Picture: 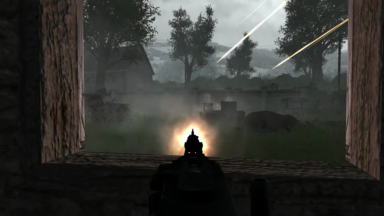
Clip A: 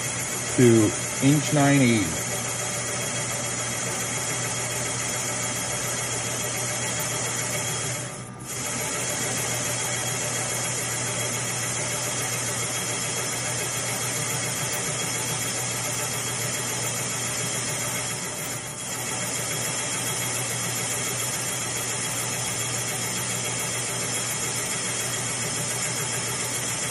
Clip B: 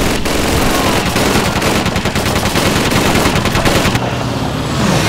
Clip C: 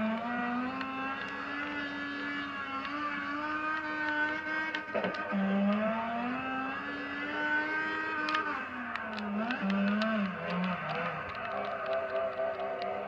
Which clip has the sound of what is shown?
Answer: B